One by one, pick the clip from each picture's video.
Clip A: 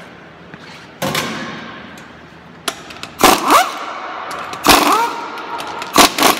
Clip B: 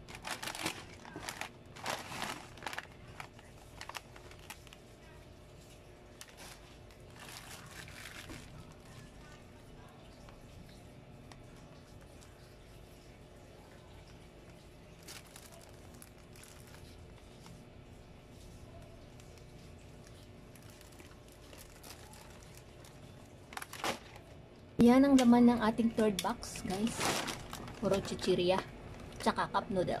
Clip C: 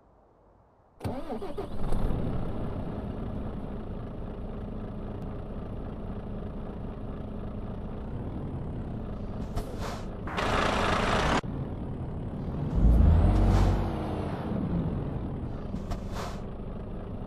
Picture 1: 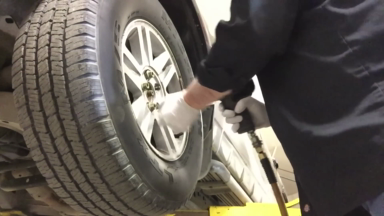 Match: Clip A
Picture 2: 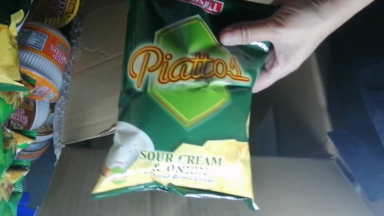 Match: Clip B